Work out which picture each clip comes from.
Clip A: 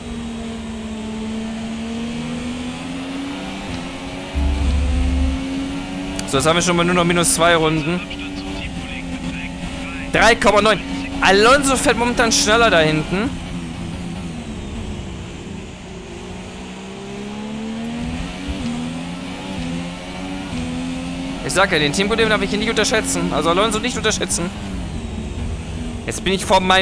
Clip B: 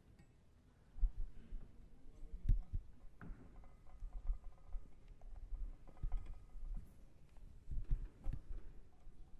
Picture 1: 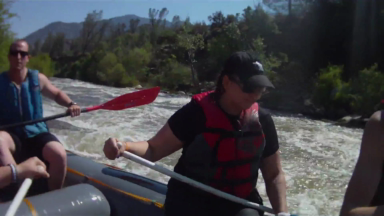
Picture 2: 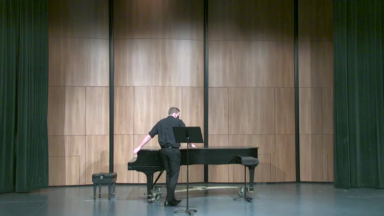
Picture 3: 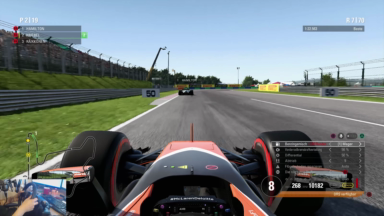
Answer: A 3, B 2